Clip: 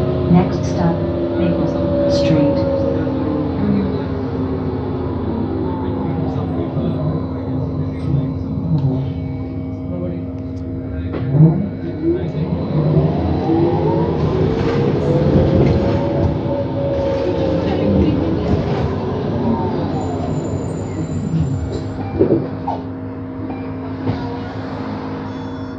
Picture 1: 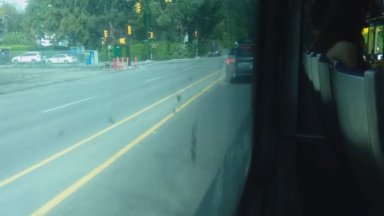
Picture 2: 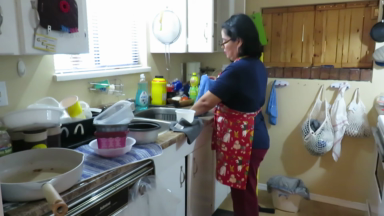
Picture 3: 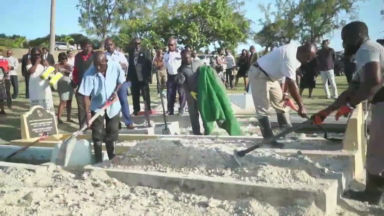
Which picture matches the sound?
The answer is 1